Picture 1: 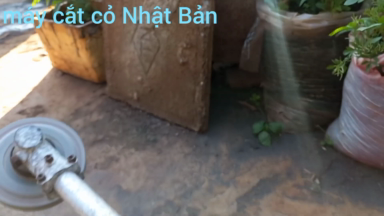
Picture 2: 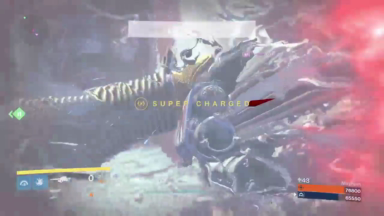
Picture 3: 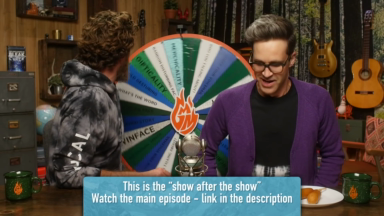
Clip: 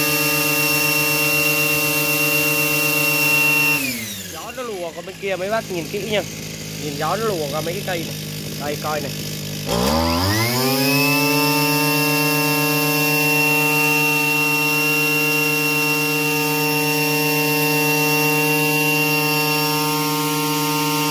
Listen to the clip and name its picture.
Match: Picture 1